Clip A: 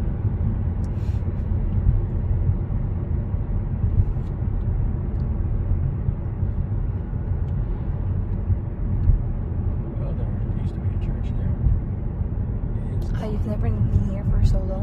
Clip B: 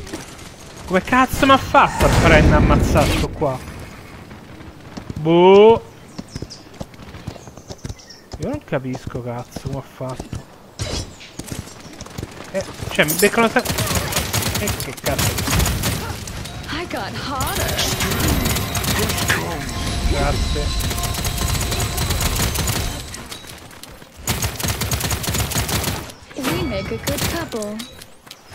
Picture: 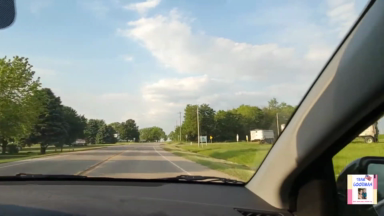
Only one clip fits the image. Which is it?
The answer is A